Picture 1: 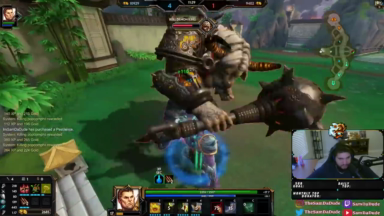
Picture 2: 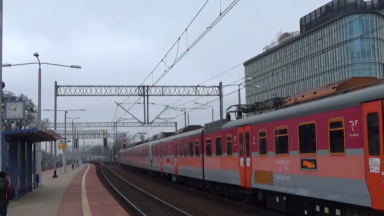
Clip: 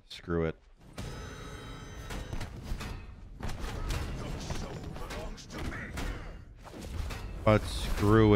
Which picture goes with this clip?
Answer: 1